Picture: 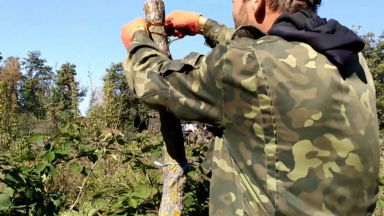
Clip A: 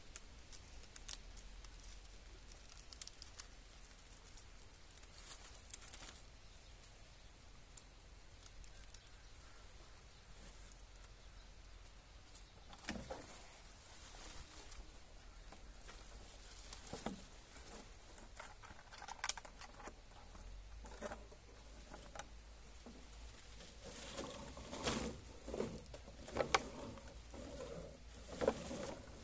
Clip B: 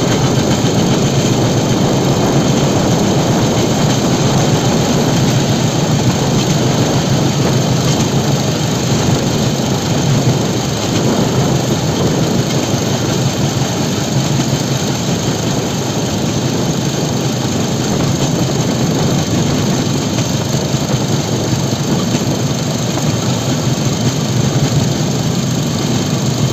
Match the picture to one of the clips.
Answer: A